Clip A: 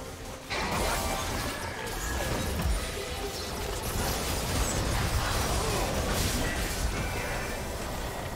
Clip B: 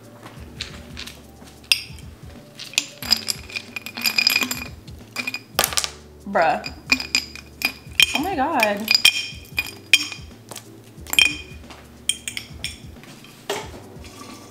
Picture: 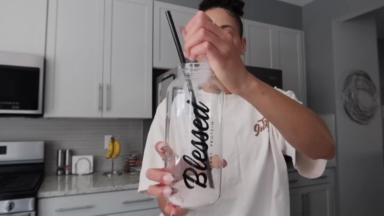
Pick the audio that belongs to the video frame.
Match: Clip B